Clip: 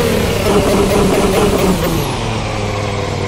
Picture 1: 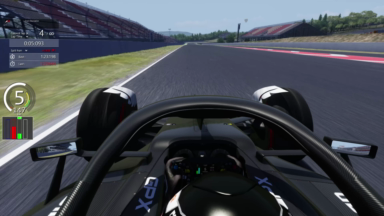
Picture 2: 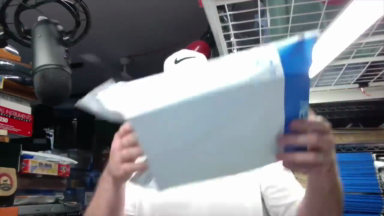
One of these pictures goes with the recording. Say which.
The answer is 1